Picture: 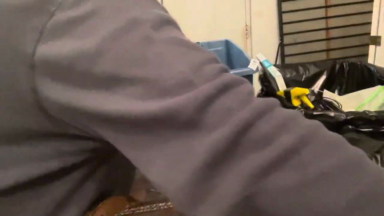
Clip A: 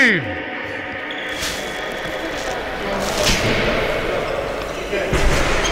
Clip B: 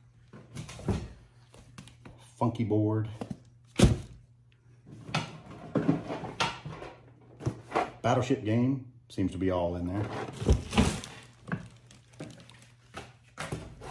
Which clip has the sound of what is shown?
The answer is B